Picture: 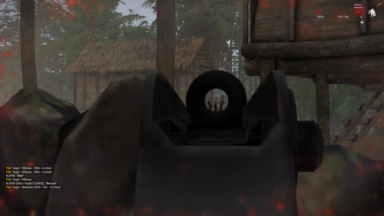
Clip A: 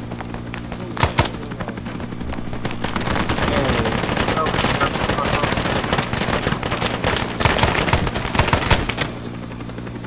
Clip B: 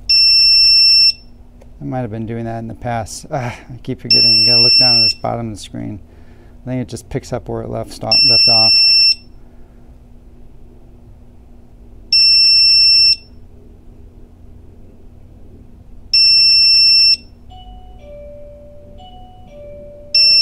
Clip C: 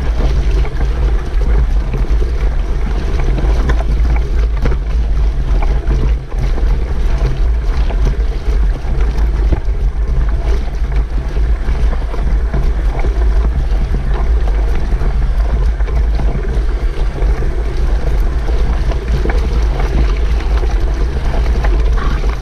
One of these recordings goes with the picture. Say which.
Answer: A